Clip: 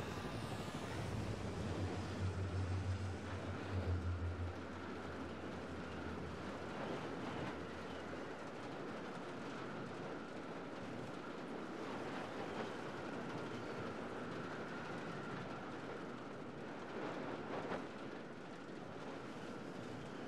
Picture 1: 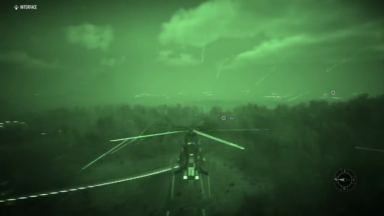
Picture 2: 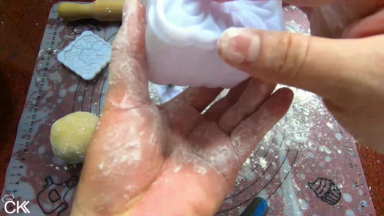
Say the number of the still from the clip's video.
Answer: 1